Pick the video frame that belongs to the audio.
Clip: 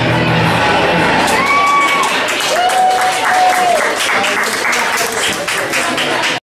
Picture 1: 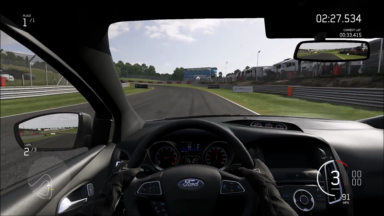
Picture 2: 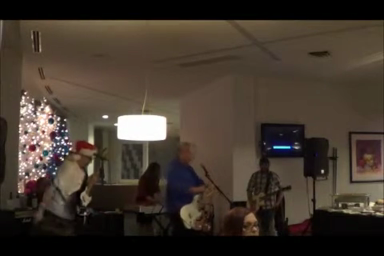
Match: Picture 2